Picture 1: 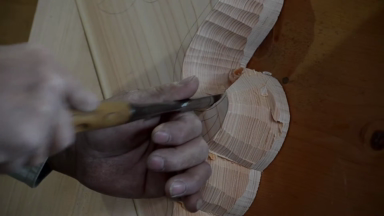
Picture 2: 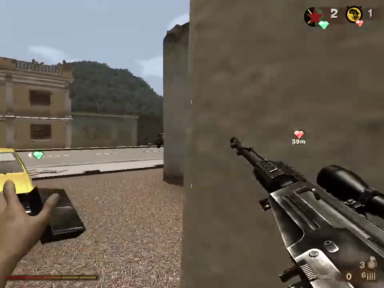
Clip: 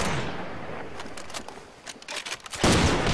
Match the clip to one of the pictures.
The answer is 2